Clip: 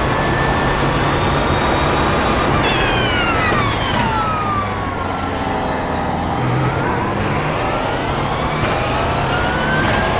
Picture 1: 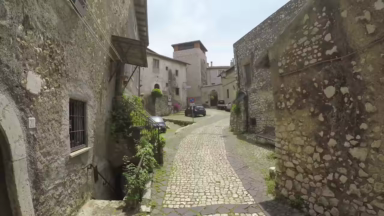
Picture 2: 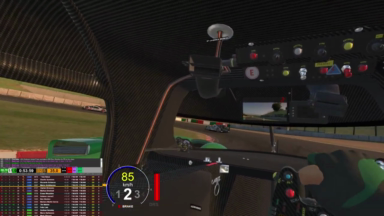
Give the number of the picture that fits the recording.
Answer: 2